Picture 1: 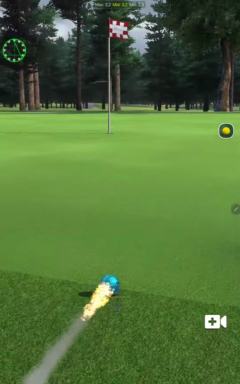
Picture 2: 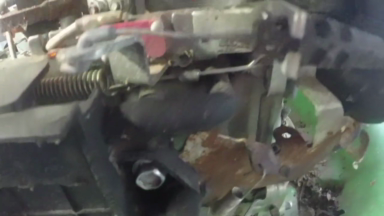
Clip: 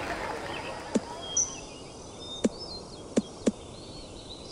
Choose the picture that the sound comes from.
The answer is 1